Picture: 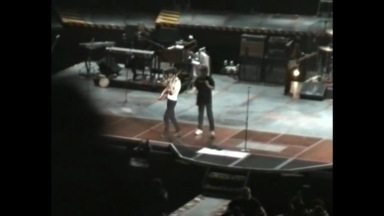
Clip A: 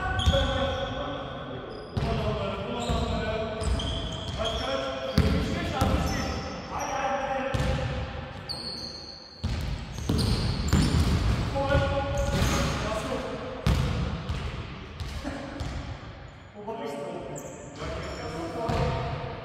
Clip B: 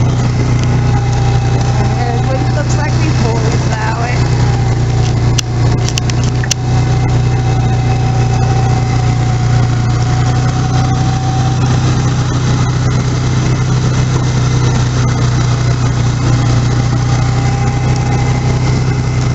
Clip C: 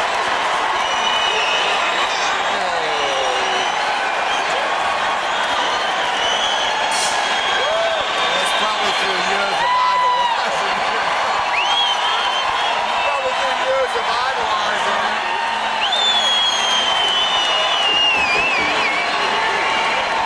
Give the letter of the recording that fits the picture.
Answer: C